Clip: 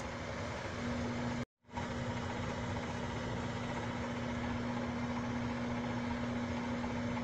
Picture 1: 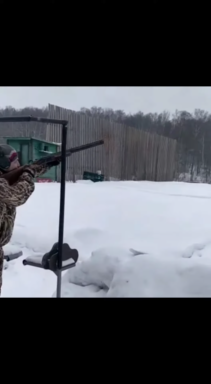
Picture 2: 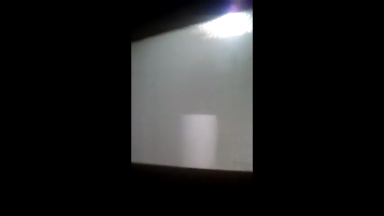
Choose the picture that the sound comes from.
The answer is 2